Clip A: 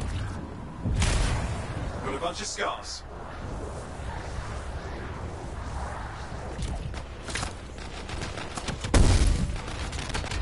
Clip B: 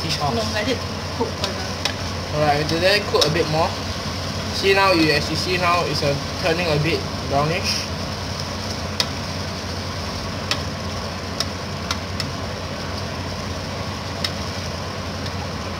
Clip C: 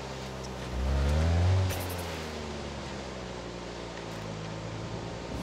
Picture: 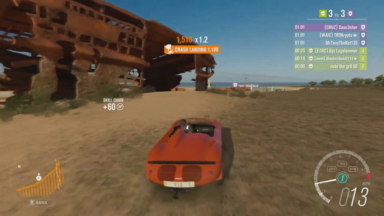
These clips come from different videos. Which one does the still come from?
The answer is C